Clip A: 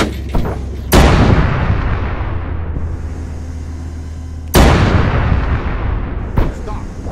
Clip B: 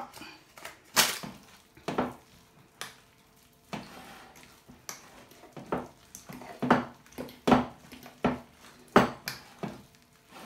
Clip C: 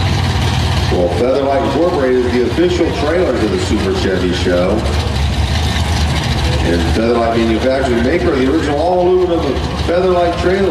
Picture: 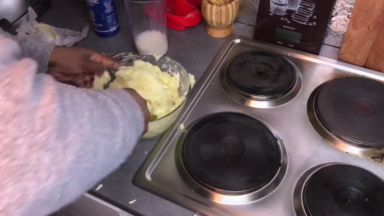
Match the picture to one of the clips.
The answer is B